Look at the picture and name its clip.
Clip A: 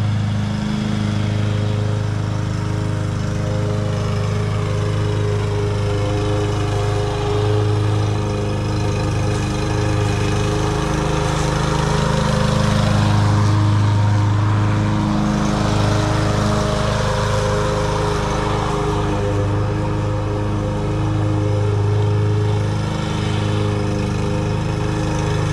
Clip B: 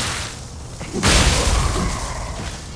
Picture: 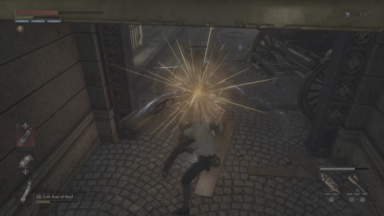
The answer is B